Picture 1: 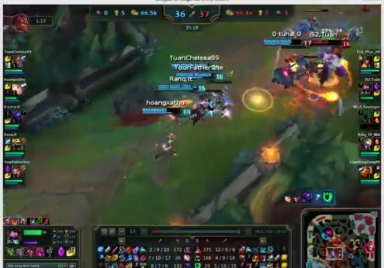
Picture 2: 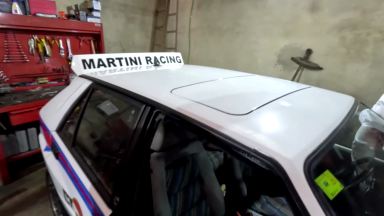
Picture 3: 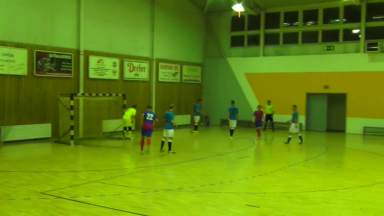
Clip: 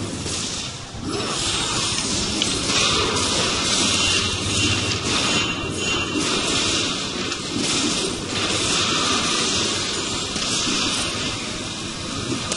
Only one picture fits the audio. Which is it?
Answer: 1